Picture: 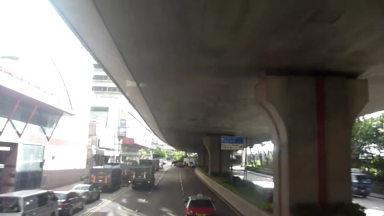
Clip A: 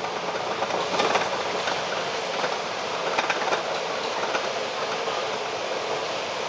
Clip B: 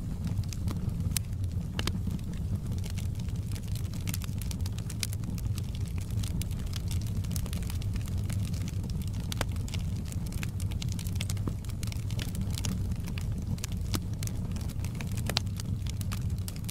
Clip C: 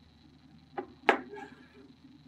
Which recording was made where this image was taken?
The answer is A